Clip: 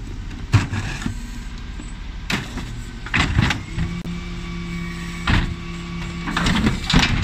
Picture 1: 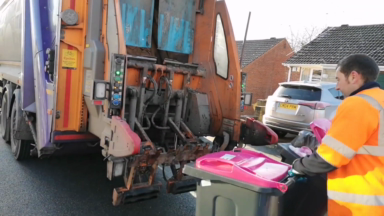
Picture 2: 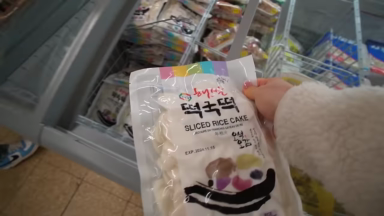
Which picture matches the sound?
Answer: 1